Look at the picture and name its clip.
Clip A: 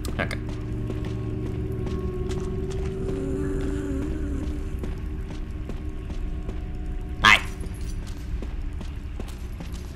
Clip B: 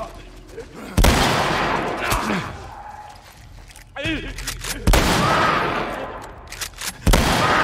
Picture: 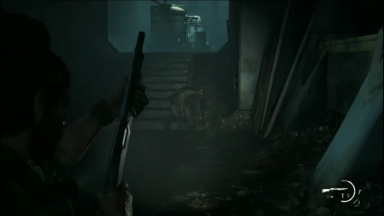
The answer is B